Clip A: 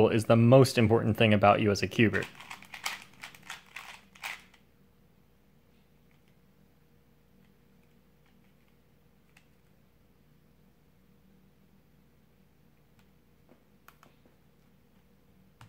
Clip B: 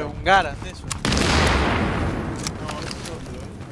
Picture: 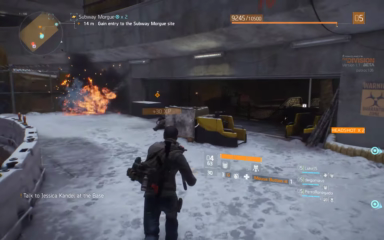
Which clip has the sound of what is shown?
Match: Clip B